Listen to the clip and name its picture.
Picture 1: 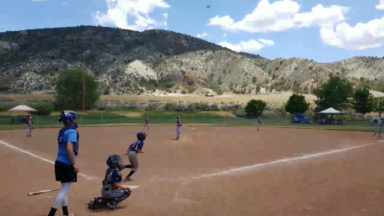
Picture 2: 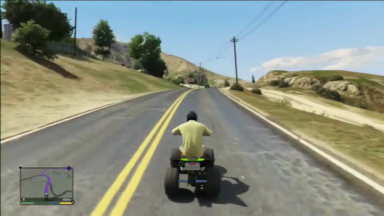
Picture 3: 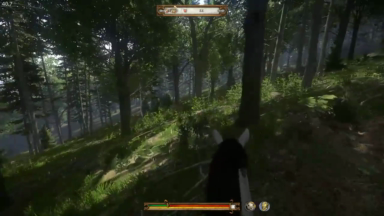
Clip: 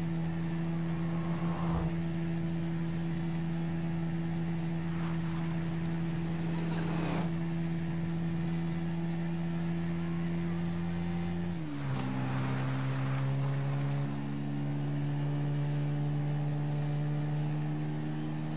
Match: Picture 2